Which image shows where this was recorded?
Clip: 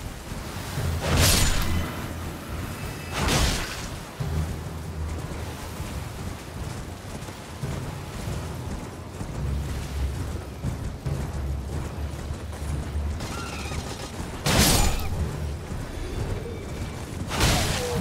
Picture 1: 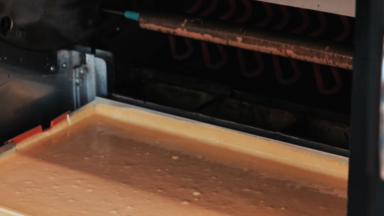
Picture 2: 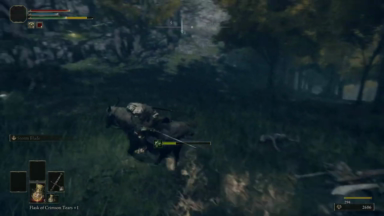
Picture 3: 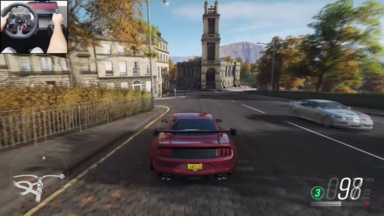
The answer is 2